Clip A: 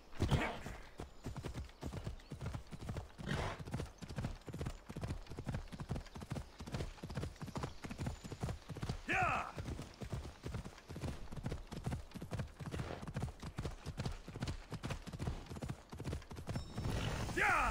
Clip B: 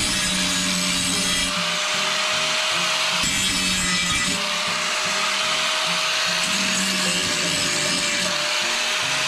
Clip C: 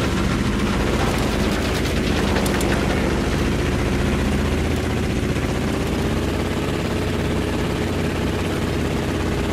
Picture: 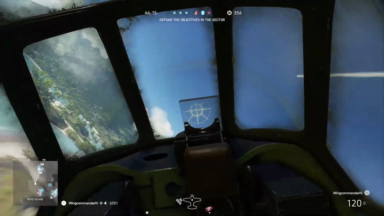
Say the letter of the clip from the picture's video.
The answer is C